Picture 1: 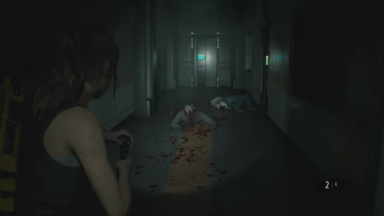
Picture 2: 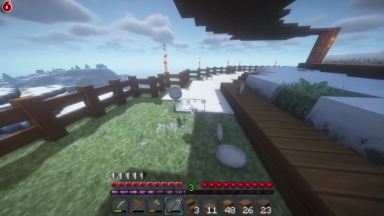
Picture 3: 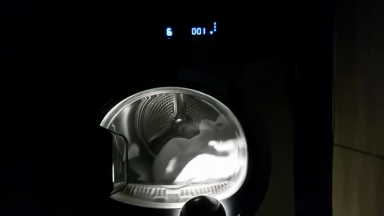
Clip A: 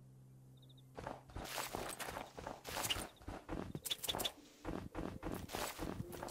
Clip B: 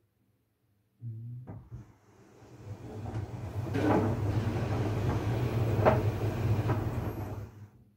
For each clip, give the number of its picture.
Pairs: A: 2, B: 3